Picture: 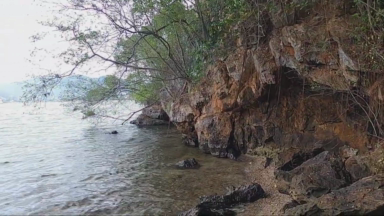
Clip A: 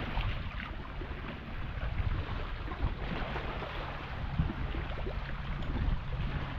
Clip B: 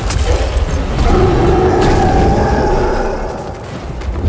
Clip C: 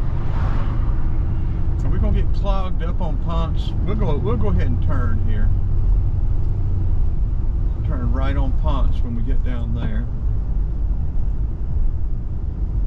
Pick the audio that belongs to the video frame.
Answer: A